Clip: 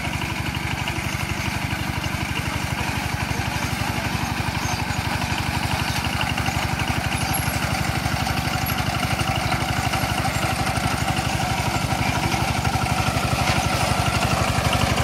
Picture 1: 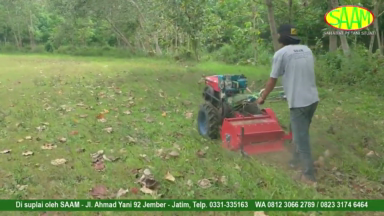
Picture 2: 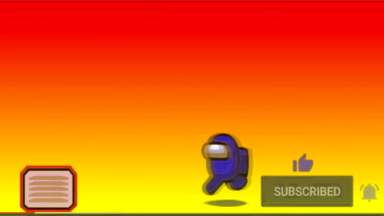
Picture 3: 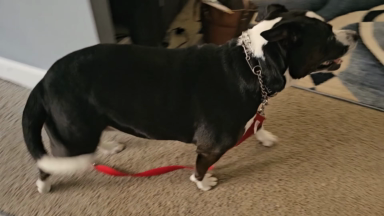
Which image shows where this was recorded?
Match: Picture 1